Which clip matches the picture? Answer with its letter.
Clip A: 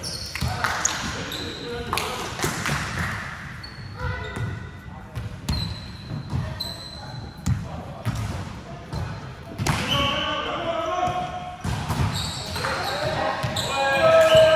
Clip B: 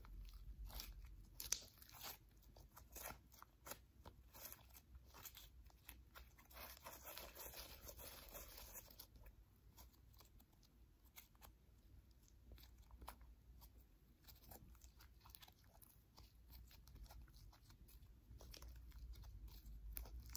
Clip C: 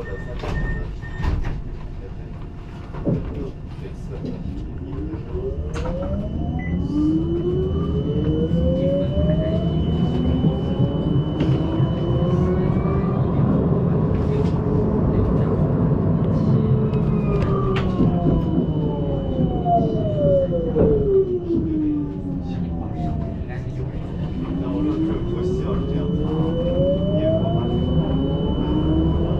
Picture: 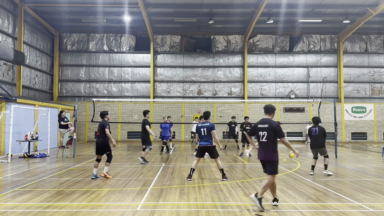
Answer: A